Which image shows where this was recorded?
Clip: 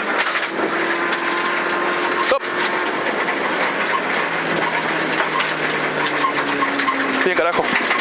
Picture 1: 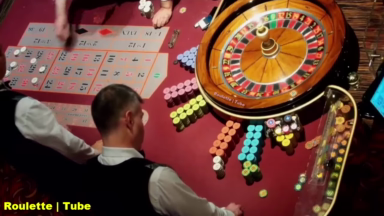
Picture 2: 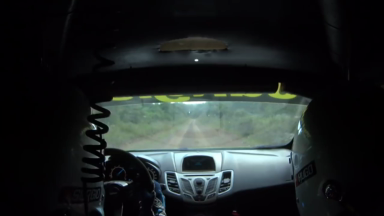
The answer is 2